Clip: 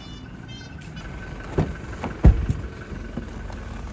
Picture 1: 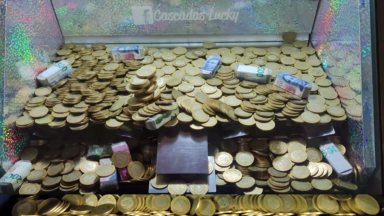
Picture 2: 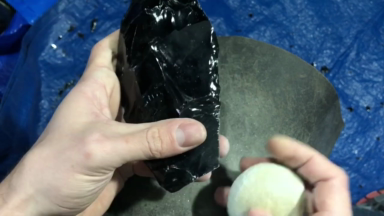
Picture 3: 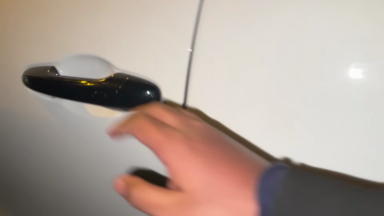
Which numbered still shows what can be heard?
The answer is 3